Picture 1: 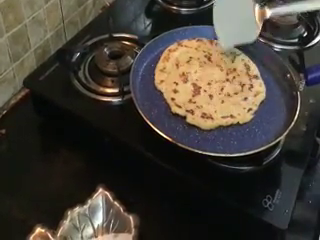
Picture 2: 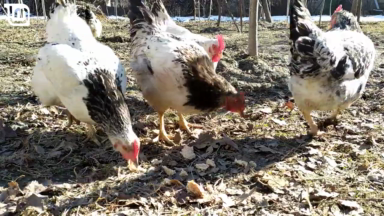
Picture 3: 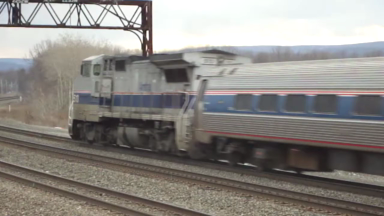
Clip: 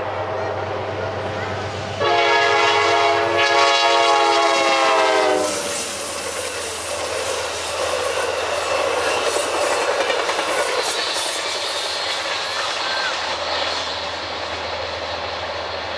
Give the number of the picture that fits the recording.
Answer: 3